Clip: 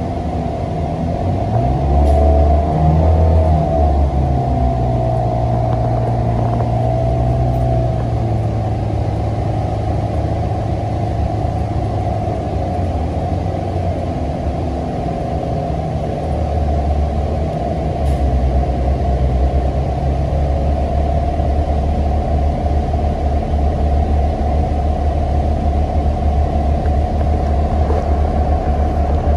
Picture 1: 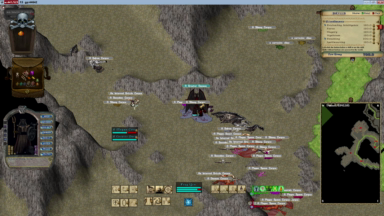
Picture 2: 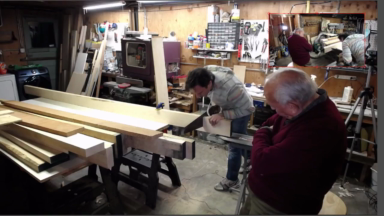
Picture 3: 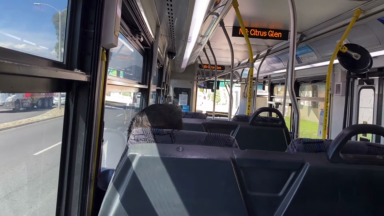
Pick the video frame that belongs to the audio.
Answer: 3